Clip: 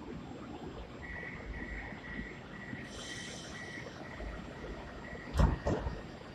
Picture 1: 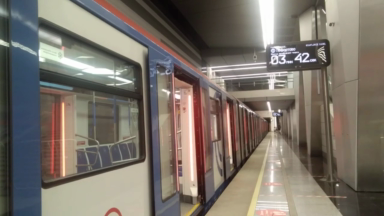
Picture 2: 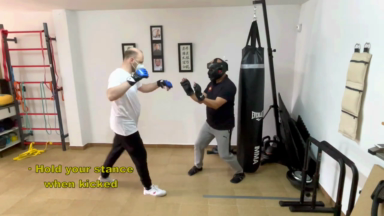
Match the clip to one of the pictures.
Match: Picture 1